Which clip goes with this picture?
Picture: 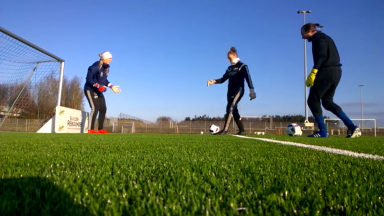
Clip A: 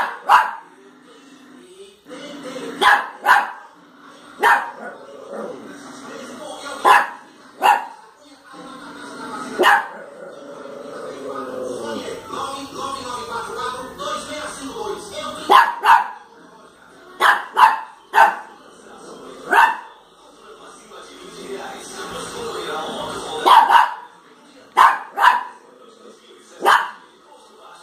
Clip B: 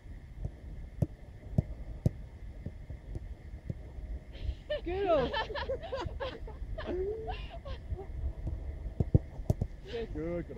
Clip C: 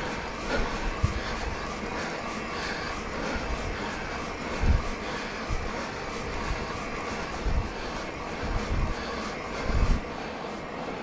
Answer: B